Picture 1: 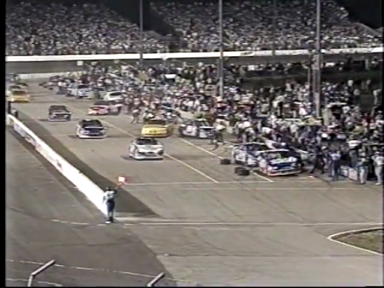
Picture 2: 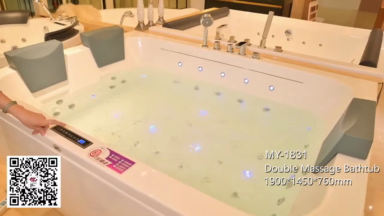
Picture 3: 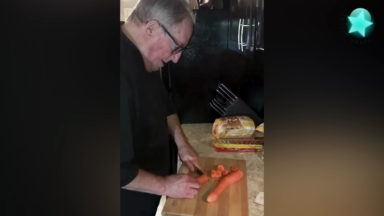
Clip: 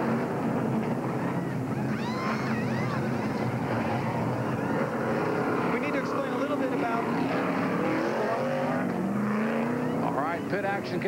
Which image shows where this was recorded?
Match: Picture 1